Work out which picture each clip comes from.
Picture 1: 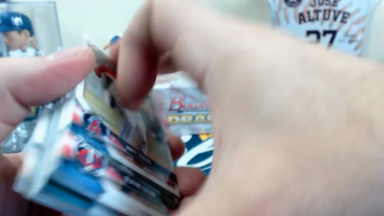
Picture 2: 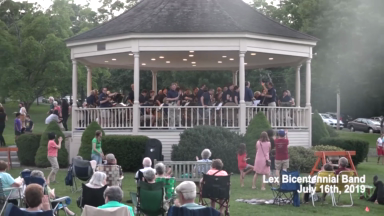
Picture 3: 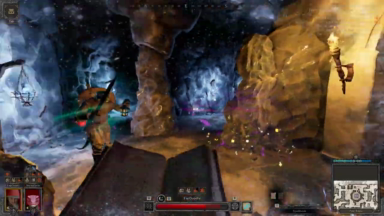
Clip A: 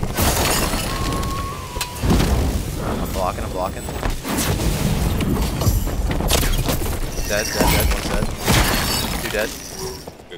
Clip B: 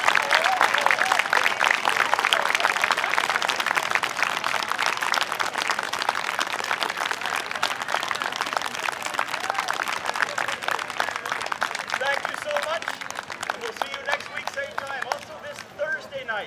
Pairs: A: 3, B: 2